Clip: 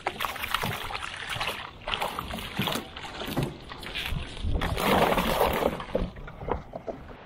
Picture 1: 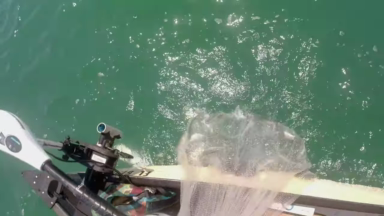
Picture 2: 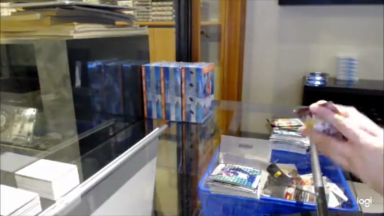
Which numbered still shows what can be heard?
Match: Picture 1